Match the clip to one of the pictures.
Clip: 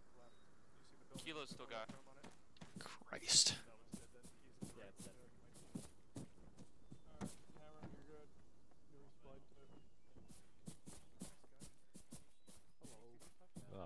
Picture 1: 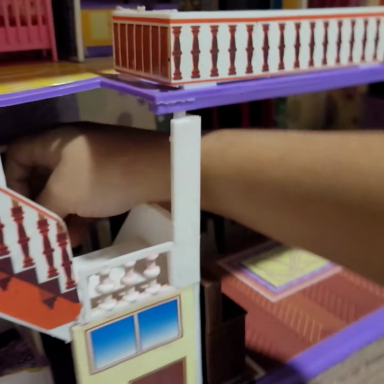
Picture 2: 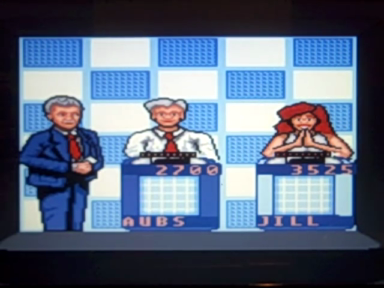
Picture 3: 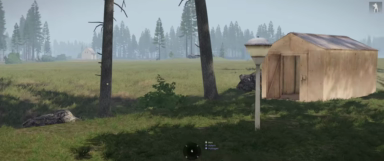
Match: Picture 3